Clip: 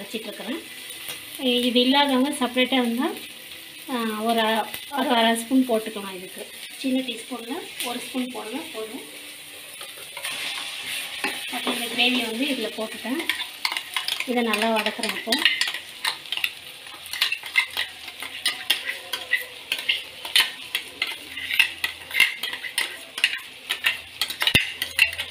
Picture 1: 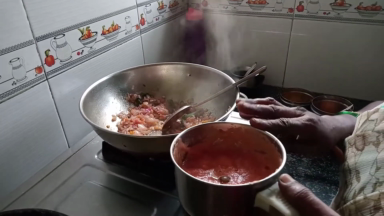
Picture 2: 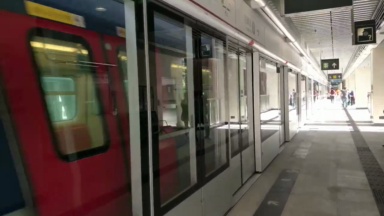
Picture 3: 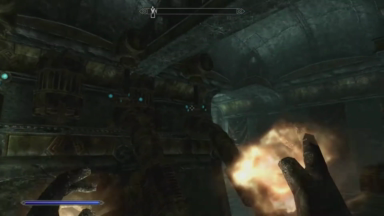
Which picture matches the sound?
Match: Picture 1